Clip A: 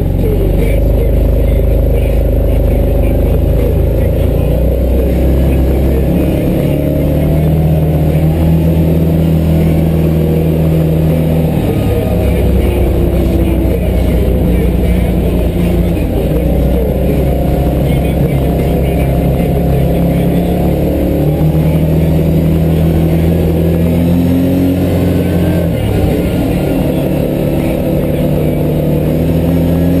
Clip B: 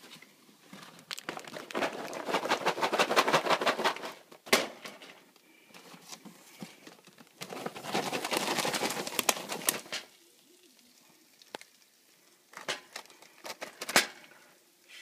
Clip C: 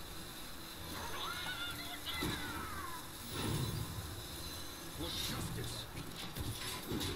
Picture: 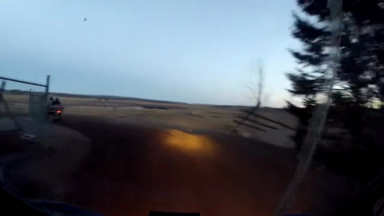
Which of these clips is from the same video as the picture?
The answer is A